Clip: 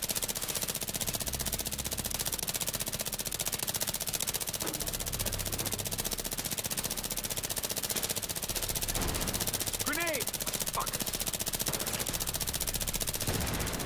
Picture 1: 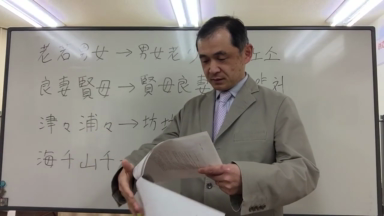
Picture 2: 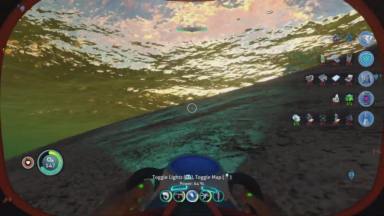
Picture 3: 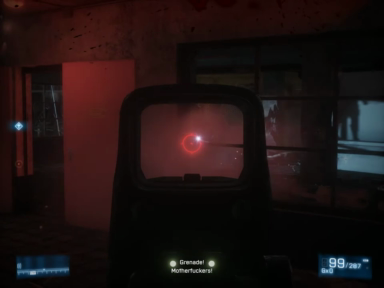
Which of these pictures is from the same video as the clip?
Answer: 3